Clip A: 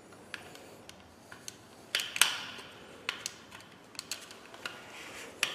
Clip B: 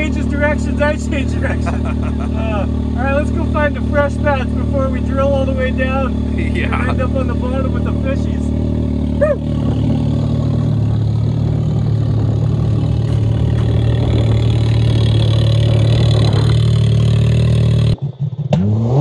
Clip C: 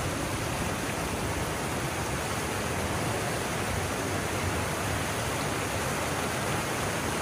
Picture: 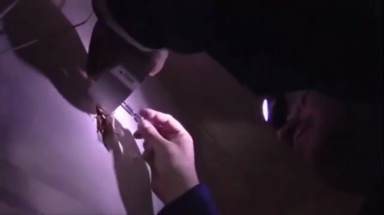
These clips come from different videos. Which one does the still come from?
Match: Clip A